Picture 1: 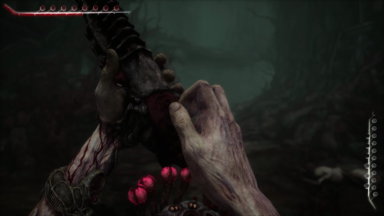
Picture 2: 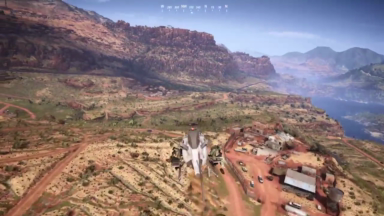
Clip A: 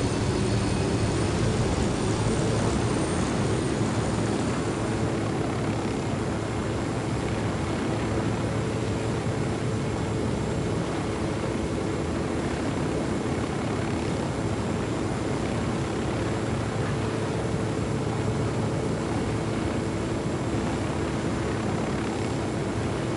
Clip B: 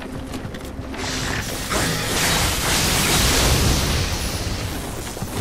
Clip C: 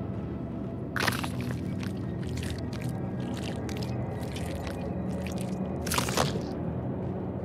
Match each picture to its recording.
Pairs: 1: C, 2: A